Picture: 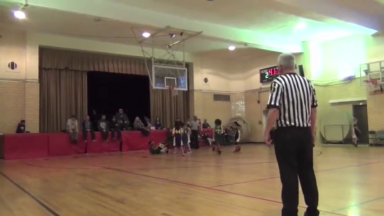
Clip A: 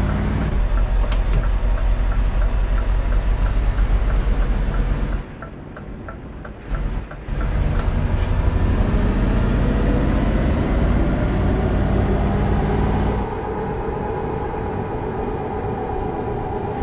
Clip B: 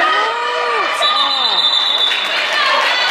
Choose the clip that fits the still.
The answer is B